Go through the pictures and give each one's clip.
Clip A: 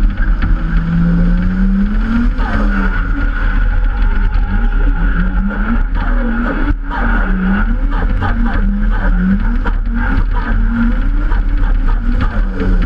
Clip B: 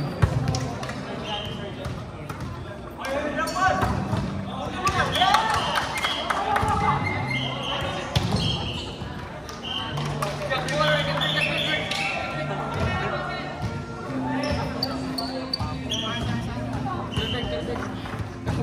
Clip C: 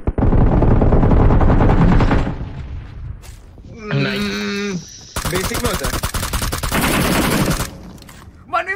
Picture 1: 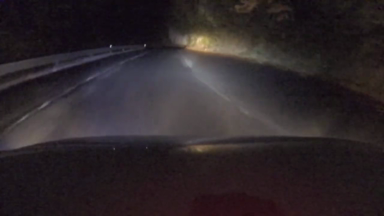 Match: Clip A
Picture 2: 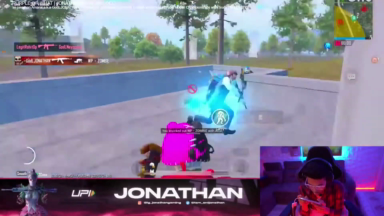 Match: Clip C